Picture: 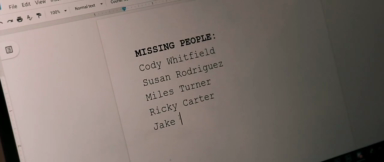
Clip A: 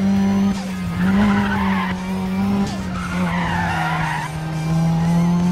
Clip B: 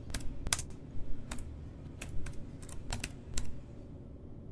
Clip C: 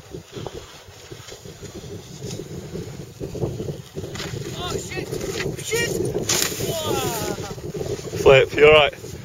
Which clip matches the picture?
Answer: B